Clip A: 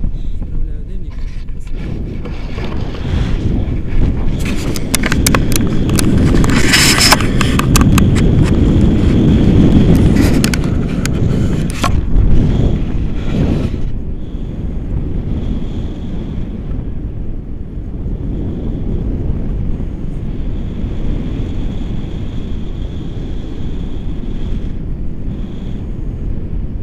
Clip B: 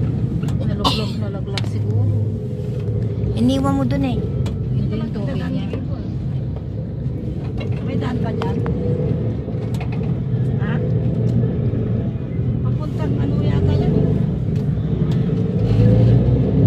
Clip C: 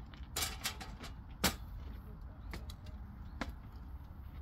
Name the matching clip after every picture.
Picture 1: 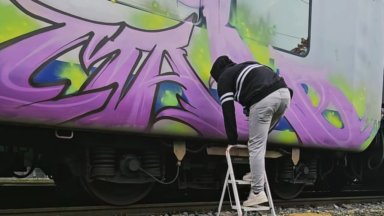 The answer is C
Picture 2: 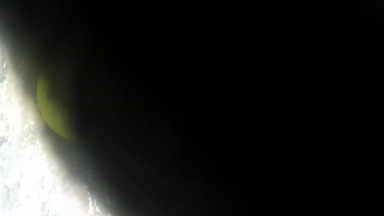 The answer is A